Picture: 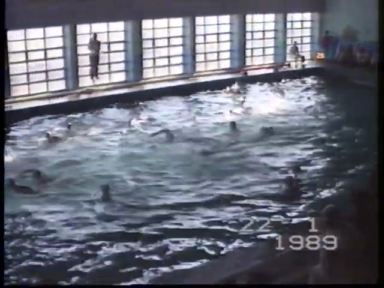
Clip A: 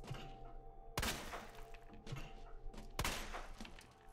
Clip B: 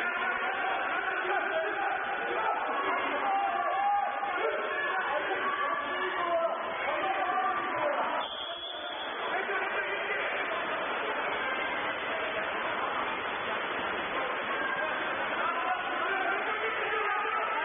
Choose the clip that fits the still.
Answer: B